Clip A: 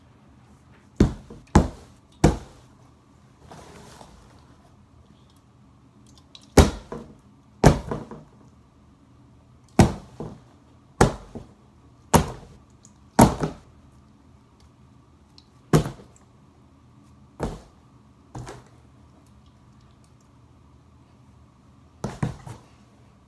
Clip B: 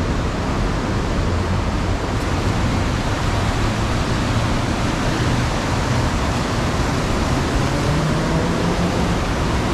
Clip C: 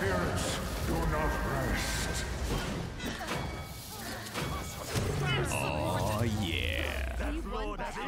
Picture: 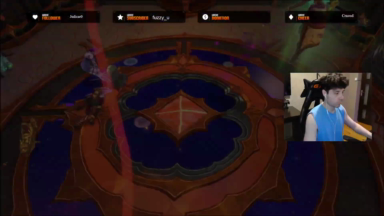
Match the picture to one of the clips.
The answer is C